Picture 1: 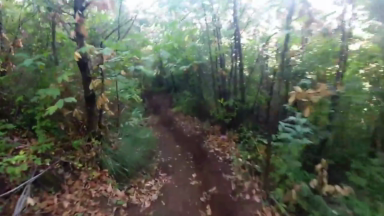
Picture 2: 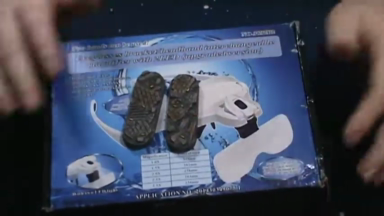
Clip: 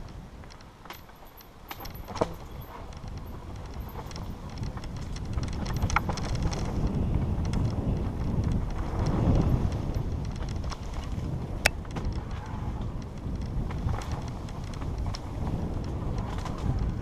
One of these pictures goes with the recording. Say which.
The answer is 1